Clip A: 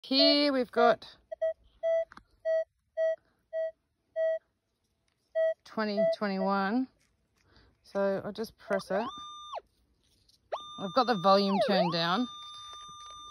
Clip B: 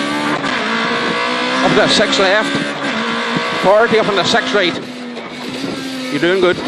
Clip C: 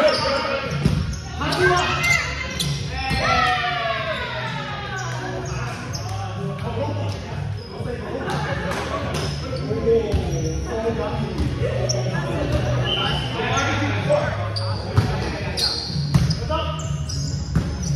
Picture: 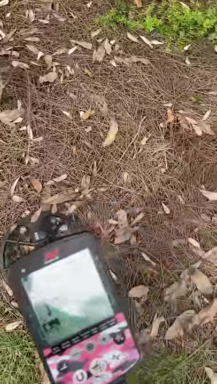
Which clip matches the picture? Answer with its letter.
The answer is A